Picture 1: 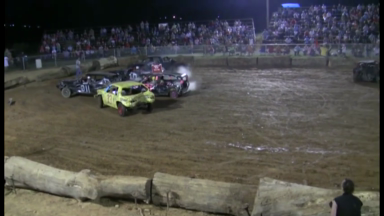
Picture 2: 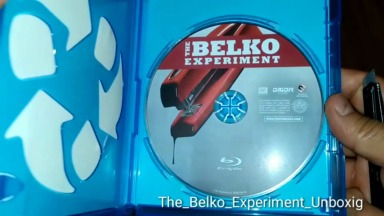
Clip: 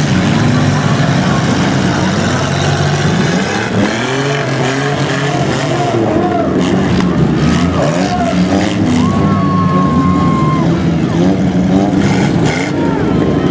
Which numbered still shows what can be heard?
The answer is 1